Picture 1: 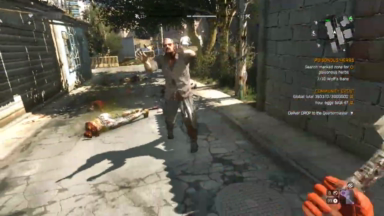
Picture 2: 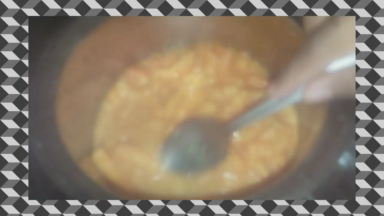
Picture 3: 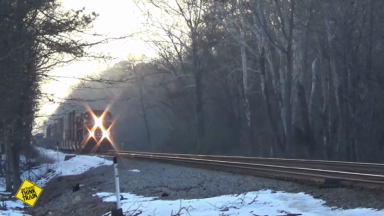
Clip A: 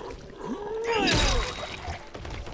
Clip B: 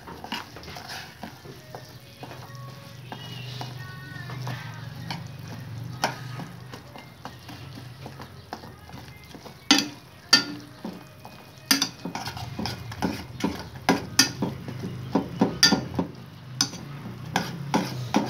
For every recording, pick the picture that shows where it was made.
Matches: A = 1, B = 2